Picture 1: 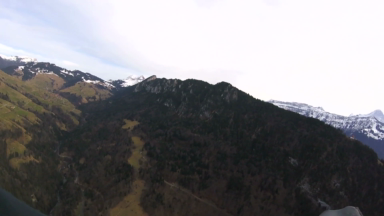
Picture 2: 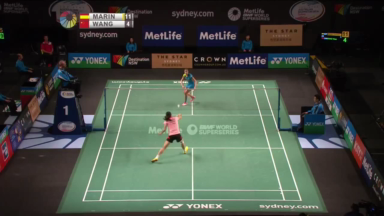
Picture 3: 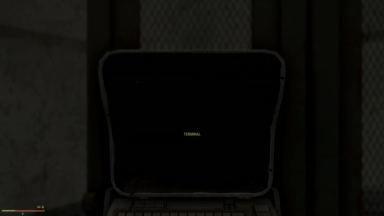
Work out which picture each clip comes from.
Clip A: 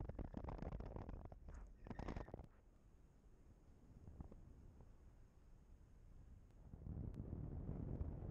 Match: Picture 1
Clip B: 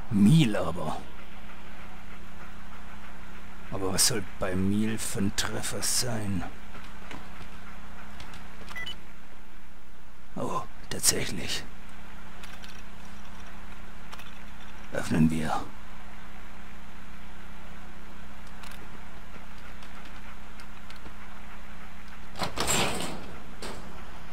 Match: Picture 3